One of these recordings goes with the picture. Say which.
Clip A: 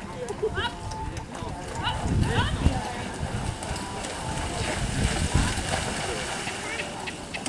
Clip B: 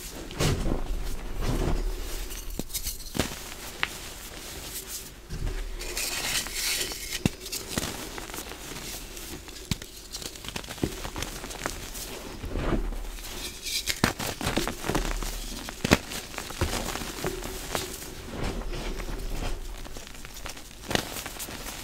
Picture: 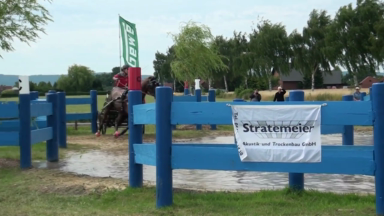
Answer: A